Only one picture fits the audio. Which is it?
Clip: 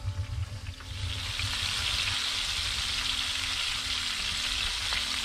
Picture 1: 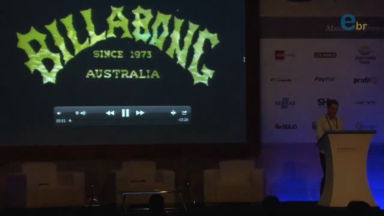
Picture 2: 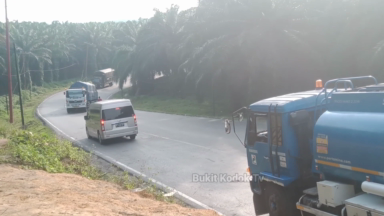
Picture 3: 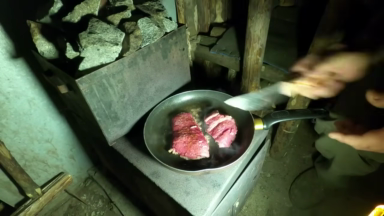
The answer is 3